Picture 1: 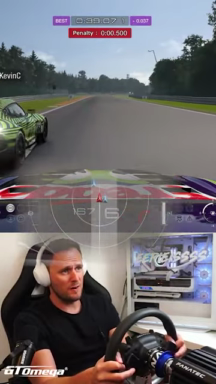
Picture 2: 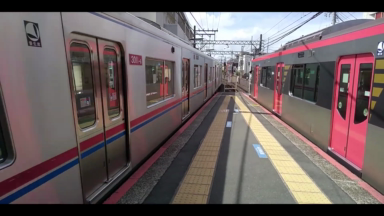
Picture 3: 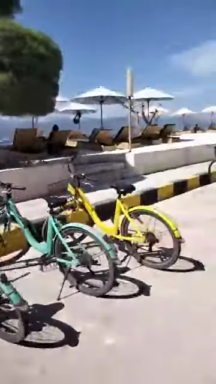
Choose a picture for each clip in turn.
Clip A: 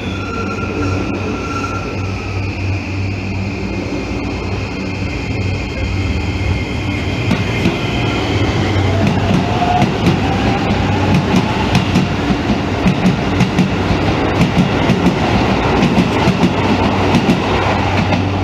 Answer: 2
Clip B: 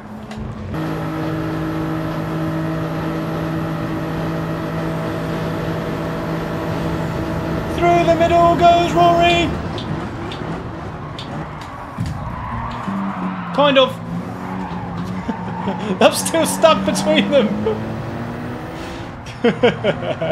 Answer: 1